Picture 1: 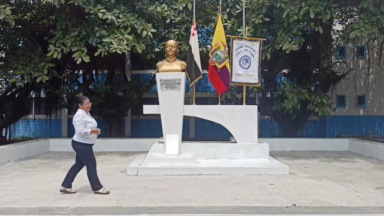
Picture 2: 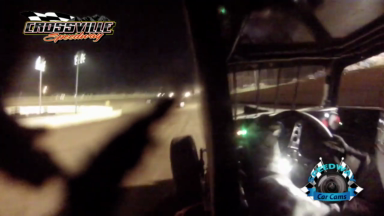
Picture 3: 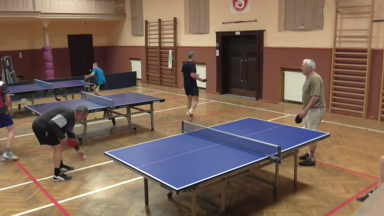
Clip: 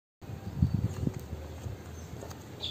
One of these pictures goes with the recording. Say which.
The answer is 1